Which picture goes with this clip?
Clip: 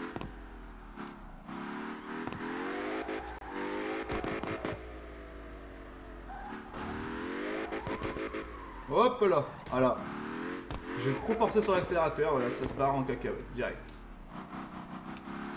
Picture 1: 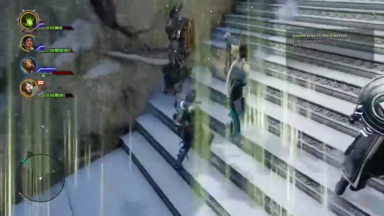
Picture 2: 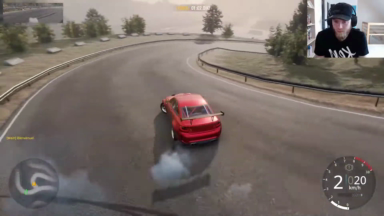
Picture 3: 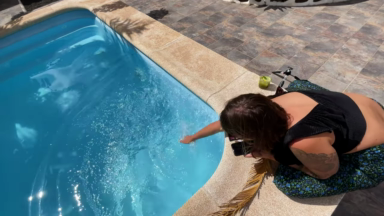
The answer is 2